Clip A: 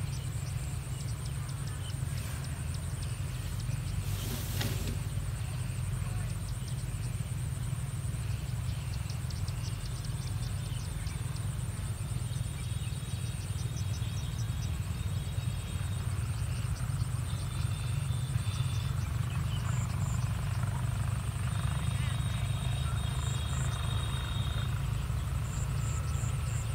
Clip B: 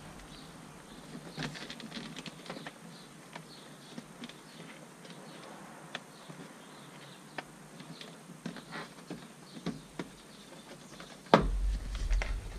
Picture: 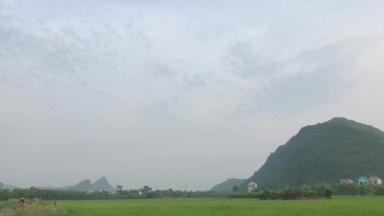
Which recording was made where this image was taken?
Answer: A